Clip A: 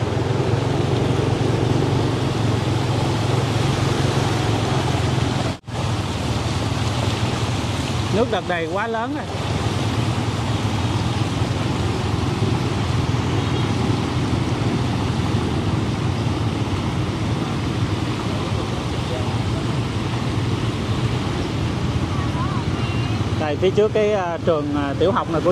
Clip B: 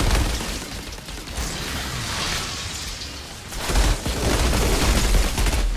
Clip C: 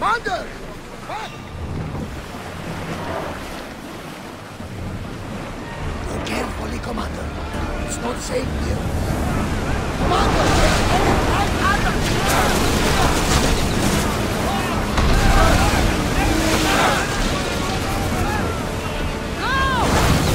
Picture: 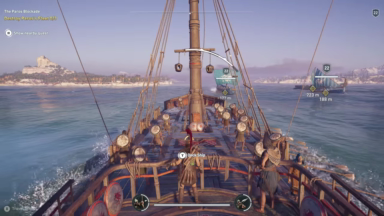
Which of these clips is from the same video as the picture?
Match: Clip C